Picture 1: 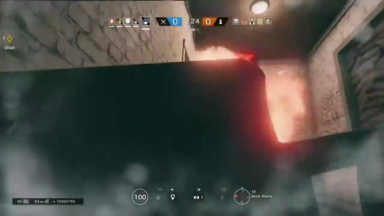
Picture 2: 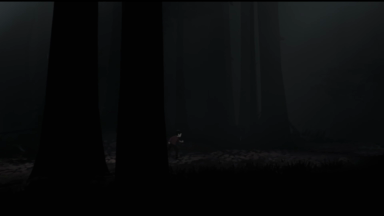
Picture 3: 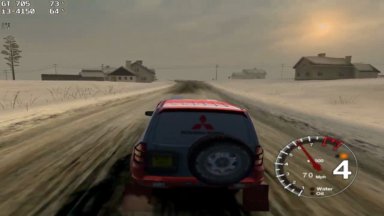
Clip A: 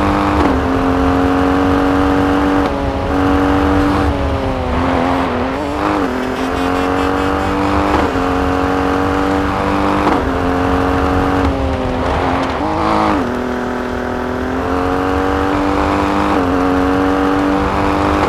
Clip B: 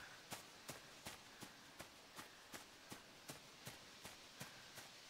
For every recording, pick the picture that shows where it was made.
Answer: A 3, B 2